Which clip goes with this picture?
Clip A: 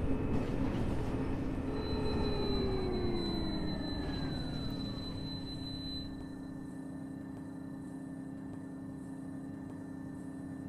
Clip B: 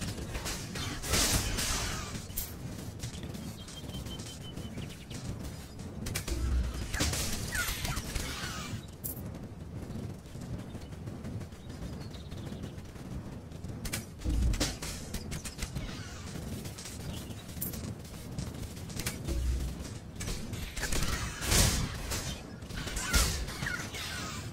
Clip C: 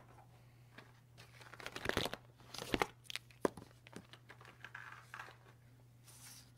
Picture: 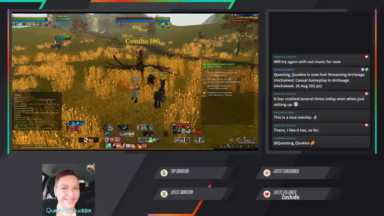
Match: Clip B